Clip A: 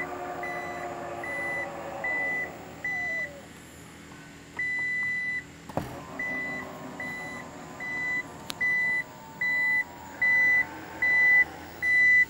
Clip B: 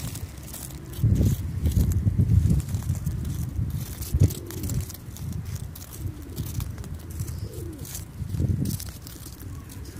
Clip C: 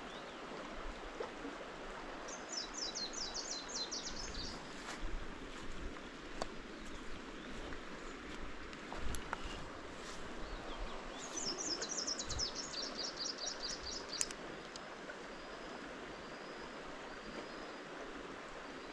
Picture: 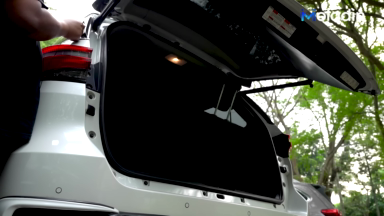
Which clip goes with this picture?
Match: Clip A